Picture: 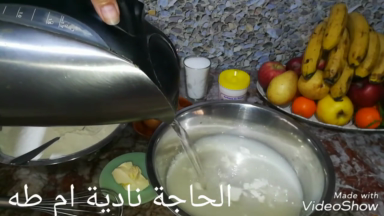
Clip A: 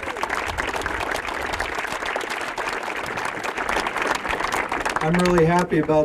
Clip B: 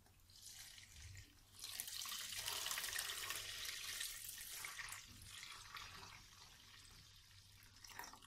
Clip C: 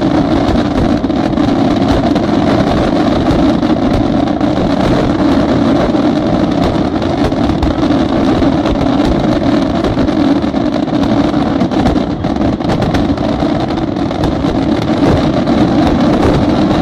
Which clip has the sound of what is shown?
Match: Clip B